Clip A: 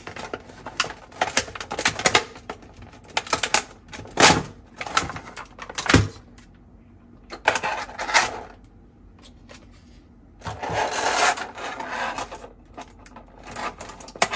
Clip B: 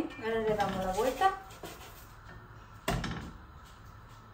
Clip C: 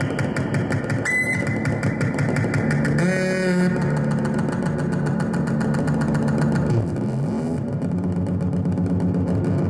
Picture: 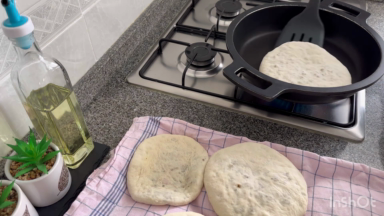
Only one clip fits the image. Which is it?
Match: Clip B